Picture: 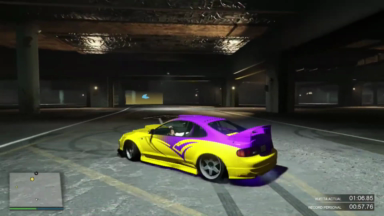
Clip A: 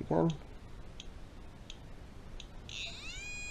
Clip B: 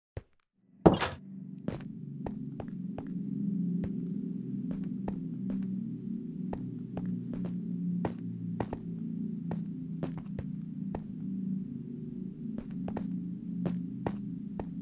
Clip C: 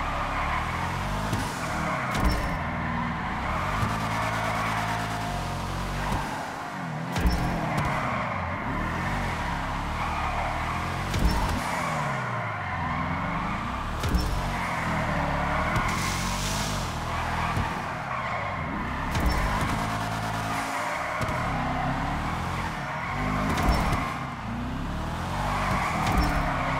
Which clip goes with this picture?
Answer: C